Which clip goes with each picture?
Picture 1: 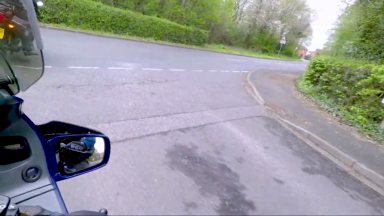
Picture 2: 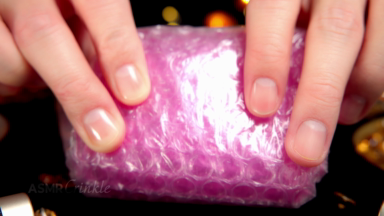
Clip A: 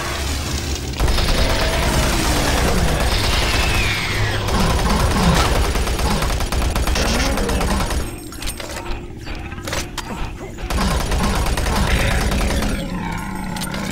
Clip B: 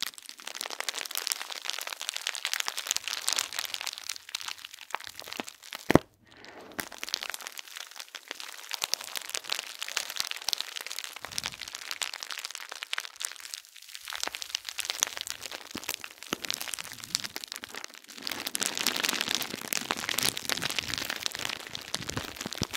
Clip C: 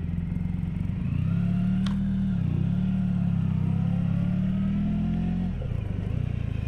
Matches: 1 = C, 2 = B